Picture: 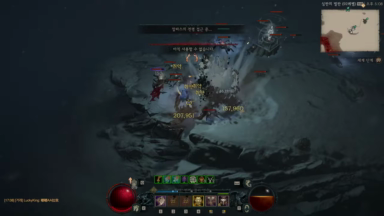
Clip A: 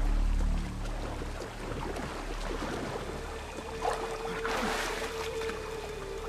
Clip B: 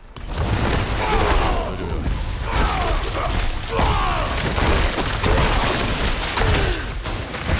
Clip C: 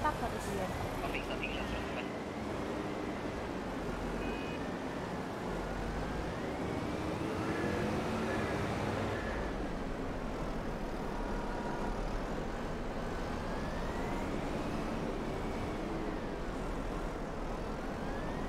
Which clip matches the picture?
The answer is B